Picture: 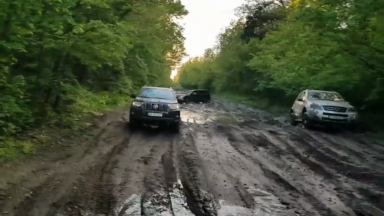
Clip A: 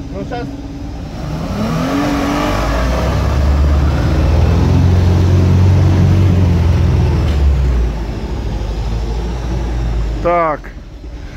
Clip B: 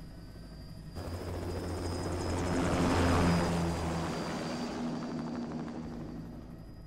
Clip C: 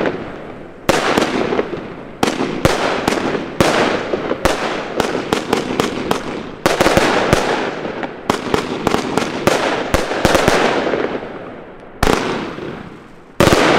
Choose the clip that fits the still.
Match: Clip A